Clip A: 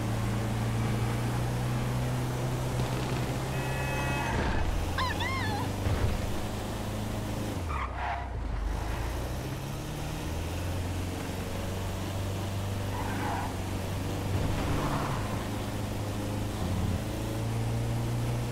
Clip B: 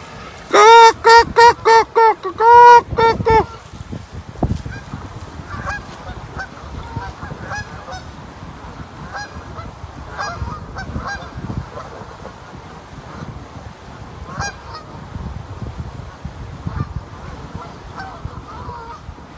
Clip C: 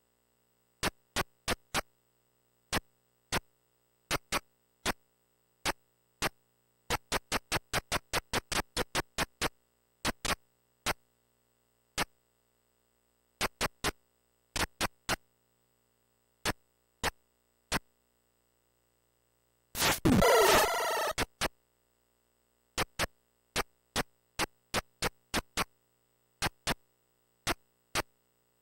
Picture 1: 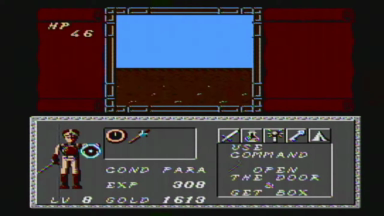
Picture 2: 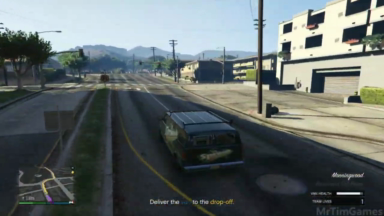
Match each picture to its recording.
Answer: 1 C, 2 A